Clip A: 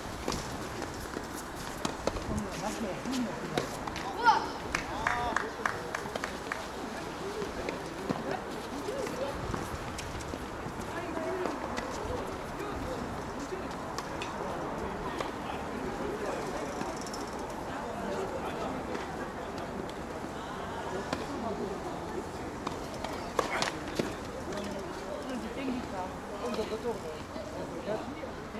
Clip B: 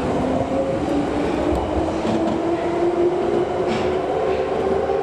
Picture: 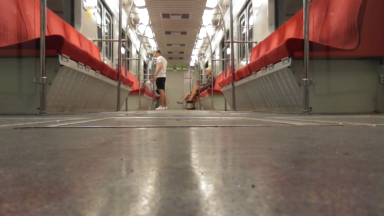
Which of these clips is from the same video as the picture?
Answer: B